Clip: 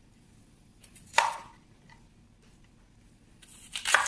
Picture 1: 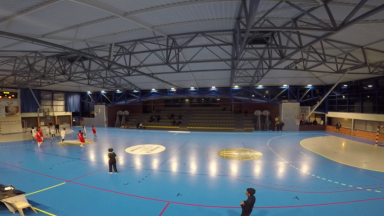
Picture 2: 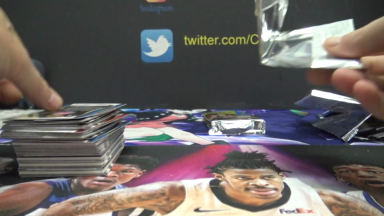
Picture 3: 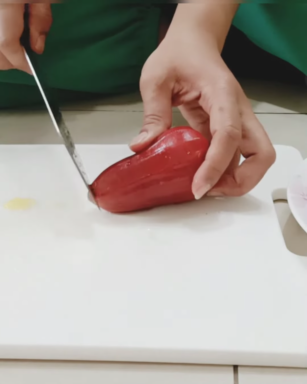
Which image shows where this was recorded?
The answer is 3